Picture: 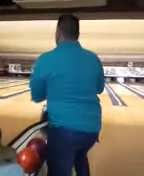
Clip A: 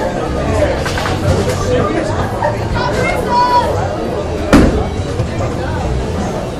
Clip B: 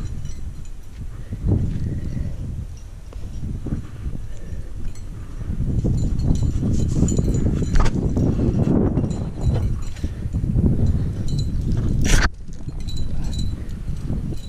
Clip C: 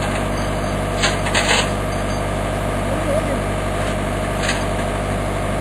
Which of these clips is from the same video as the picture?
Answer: A